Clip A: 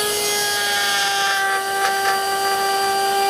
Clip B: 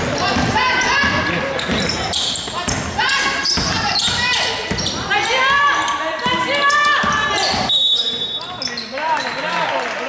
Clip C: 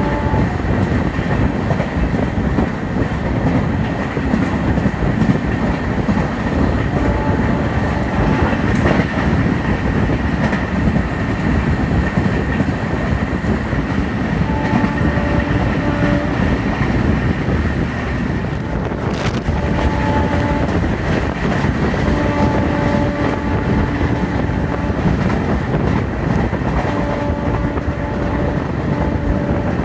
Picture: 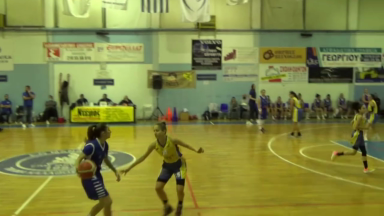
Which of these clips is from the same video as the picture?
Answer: B